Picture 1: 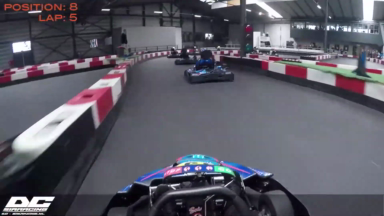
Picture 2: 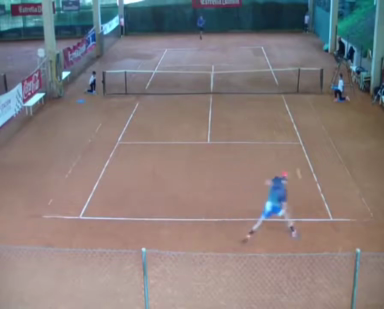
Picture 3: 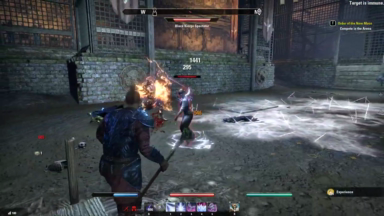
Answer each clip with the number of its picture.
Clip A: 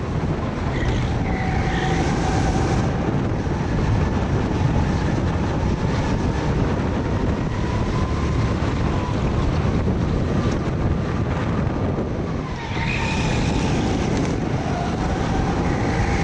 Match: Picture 1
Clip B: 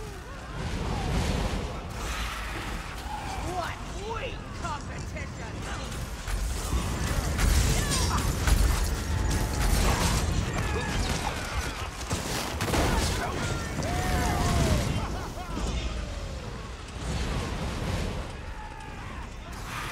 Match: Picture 3